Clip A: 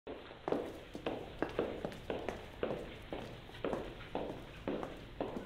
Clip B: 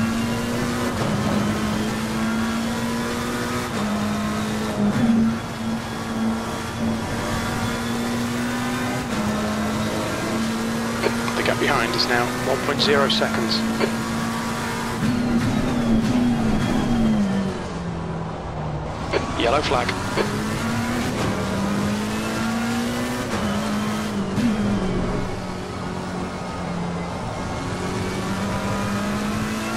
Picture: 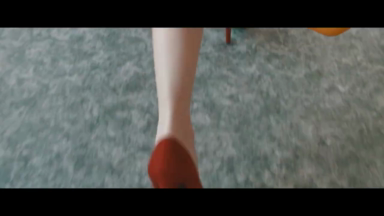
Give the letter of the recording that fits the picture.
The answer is A